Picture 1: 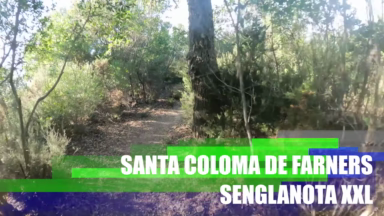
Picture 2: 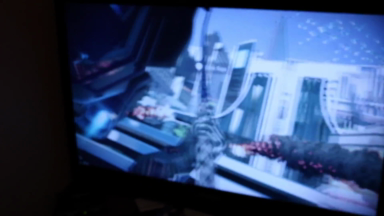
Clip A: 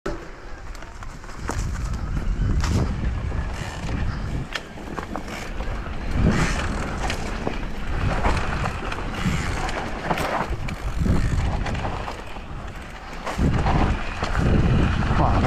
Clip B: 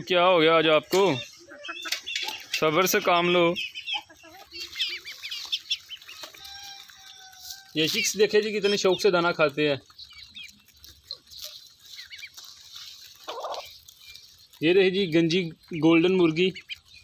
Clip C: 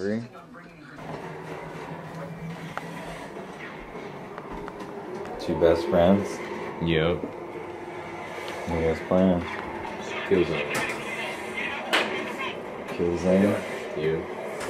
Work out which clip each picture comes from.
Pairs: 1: A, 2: C